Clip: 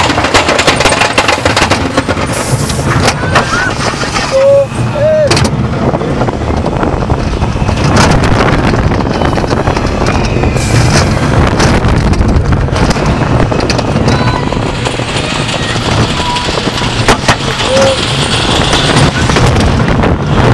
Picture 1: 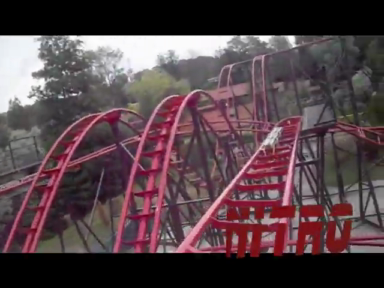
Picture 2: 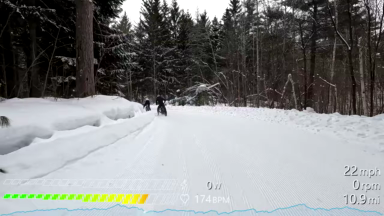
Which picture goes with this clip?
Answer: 1